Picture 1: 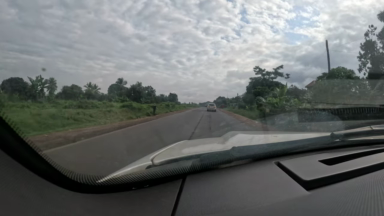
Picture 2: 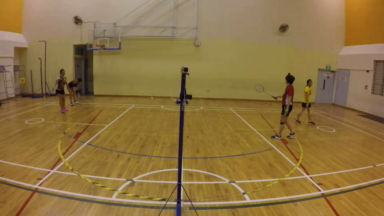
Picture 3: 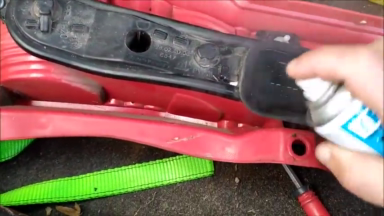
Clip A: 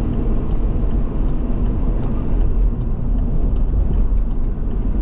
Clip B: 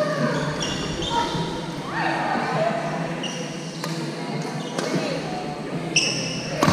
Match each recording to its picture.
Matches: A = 1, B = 2